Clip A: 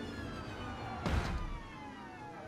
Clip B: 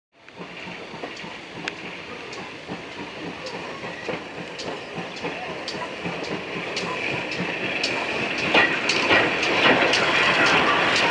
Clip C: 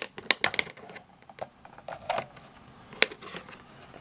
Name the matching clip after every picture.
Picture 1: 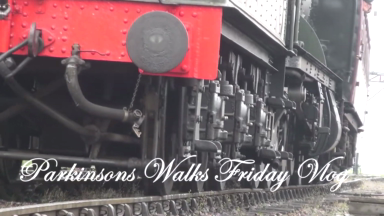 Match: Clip B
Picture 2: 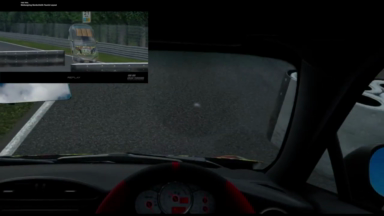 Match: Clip A